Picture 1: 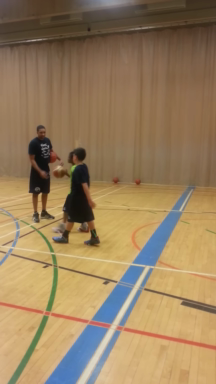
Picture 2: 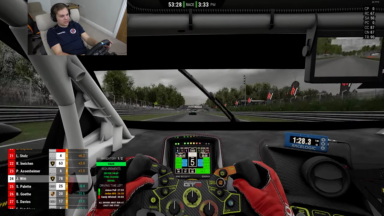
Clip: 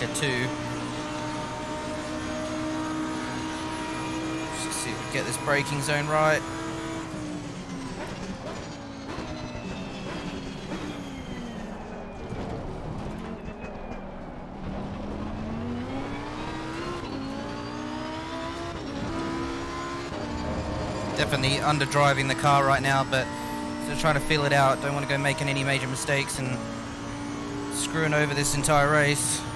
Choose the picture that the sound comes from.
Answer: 2